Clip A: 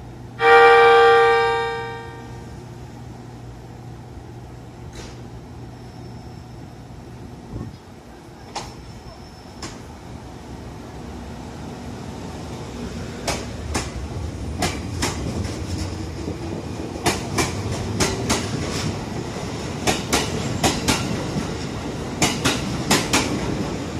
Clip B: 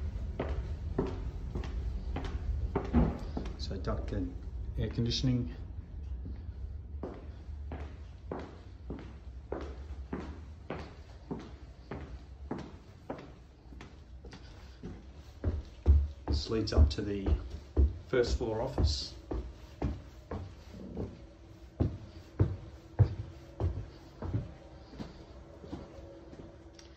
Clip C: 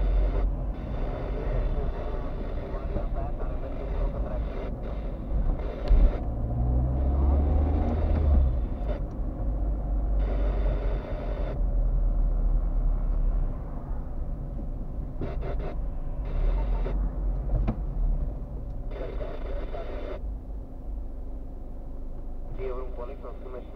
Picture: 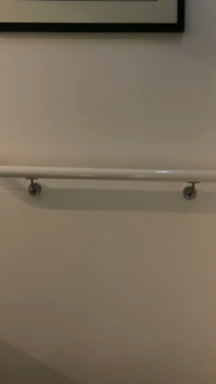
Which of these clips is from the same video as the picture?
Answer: B